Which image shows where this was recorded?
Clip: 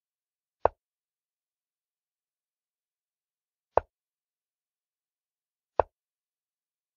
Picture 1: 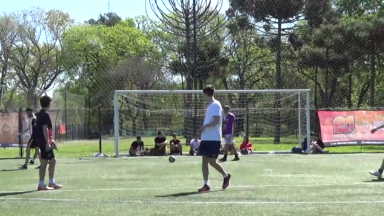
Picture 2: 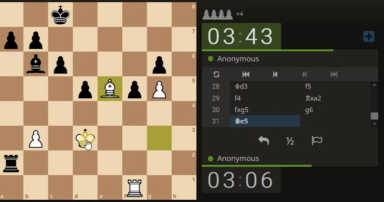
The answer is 2